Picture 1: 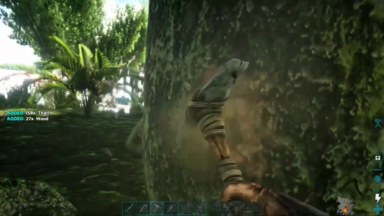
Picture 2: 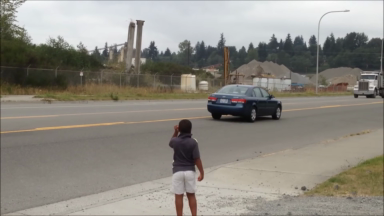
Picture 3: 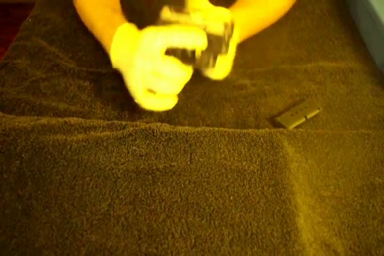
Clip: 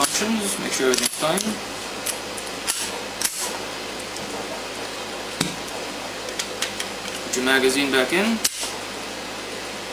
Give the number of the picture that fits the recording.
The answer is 3